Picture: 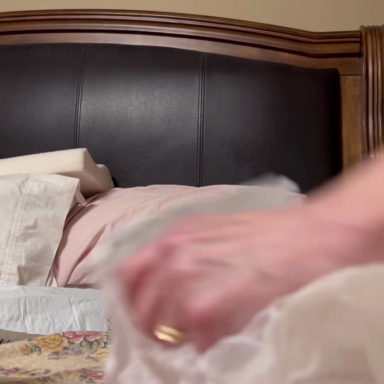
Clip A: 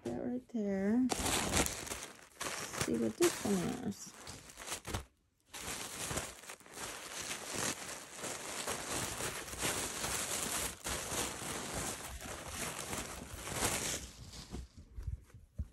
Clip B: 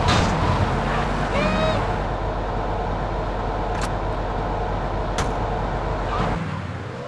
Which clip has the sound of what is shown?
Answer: A